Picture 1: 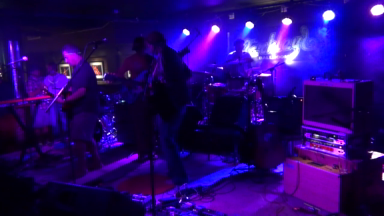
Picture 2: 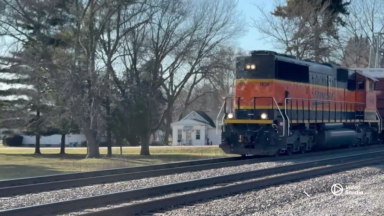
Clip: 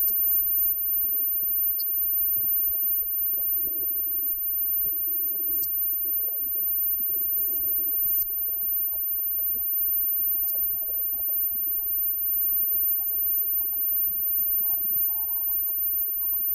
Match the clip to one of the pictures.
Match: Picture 1